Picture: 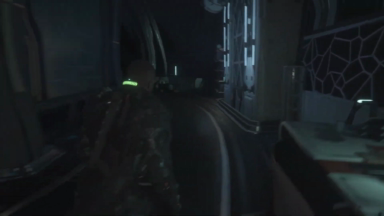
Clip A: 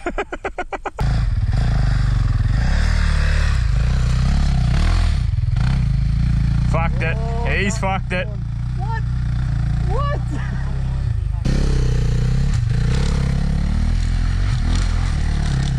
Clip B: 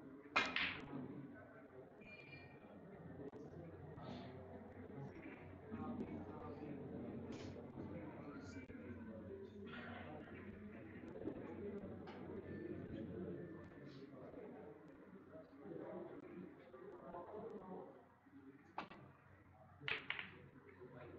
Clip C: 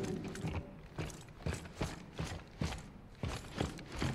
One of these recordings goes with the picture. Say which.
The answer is C